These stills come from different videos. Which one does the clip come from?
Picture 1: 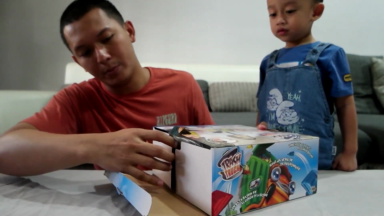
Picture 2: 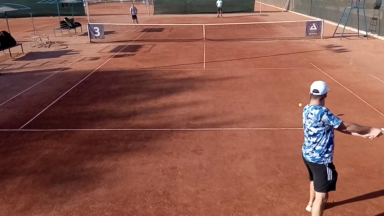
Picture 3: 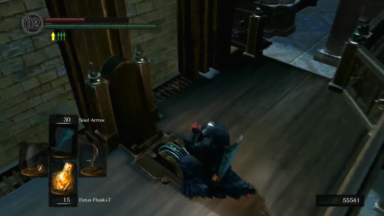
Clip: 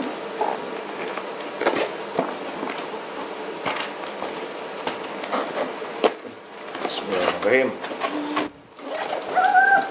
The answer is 1